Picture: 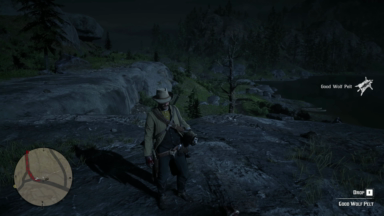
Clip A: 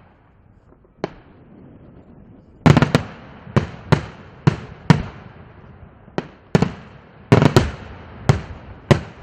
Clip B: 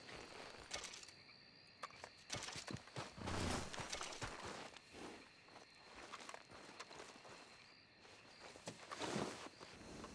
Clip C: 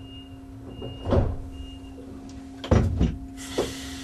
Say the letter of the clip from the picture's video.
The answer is B